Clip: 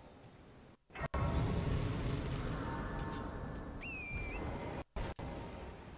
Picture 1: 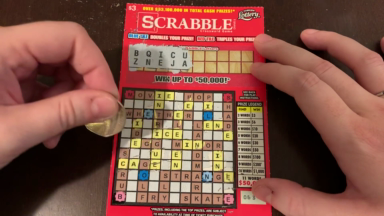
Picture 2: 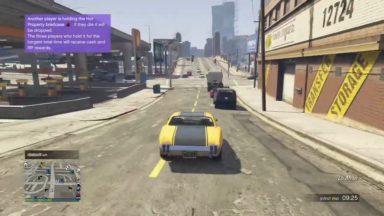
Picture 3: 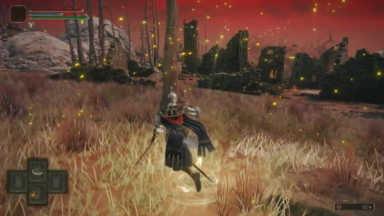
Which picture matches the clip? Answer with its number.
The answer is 3